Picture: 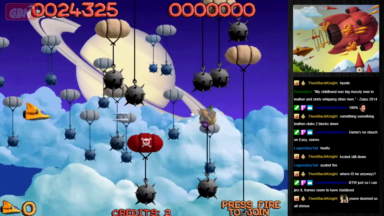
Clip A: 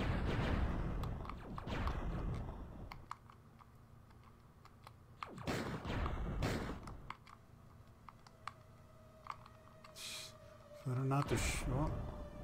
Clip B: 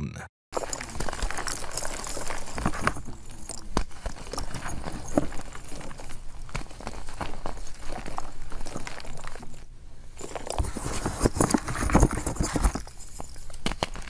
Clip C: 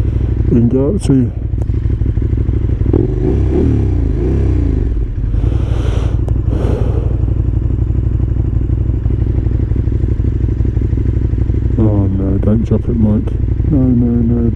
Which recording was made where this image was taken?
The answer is A